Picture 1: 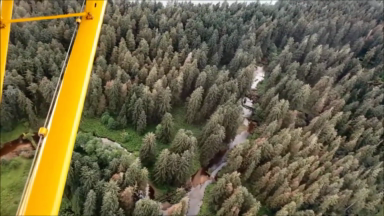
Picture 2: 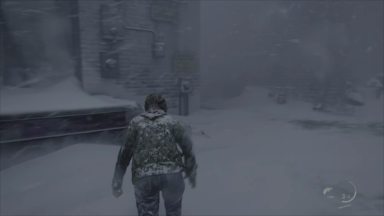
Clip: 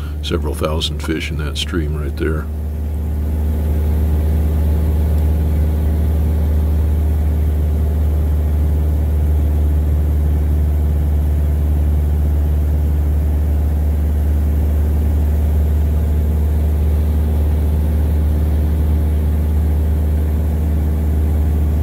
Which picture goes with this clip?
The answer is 1